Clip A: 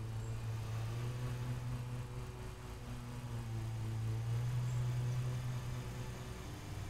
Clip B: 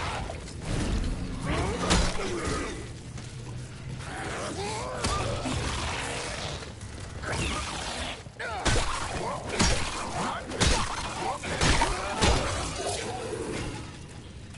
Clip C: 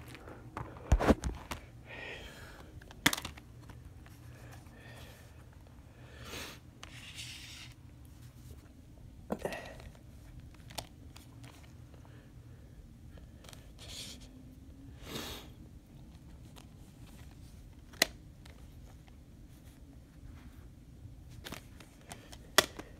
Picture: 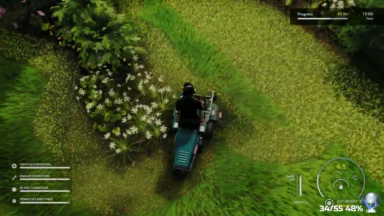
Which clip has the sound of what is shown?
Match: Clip A